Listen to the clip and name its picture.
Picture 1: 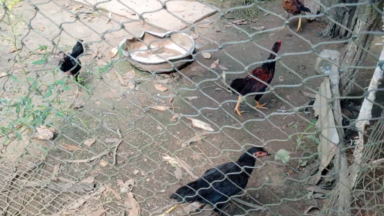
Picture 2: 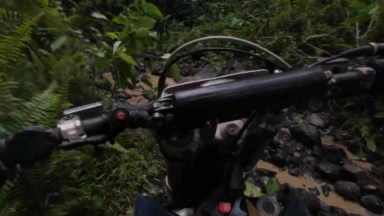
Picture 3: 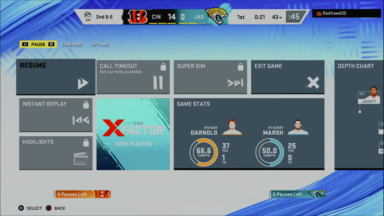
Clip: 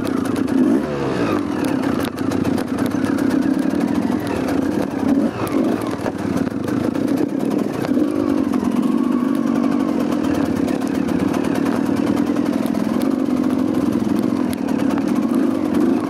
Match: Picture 2